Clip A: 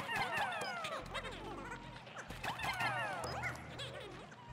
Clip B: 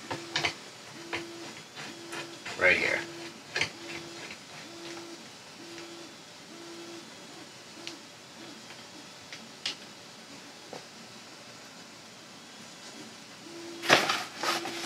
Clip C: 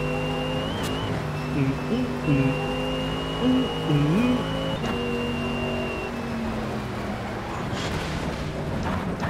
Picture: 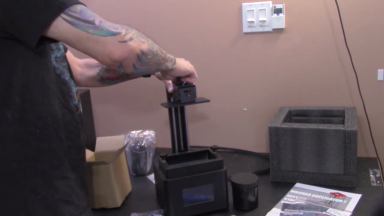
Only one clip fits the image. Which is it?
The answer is B